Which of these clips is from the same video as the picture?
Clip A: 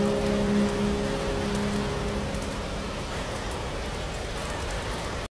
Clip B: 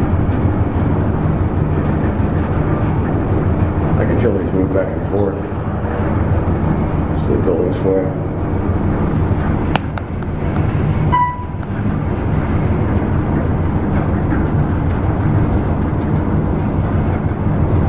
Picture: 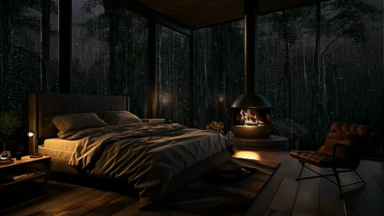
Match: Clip A